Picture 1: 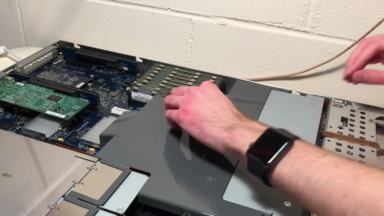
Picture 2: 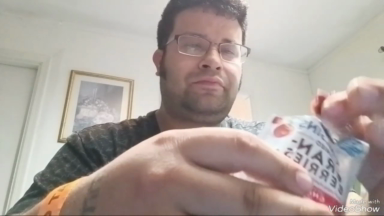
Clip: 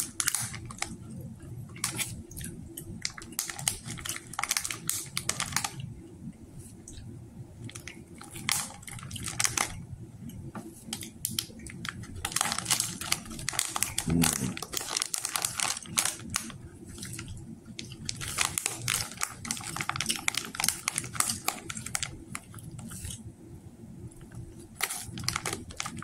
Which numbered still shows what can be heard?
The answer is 2